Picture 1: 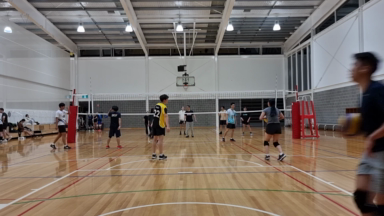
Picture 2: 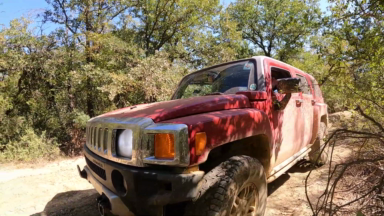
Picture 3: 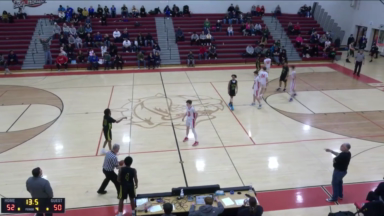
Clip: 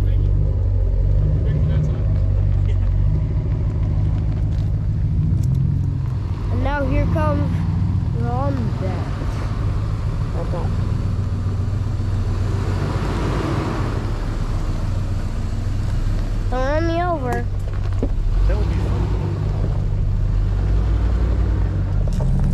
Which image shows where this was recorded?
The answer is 2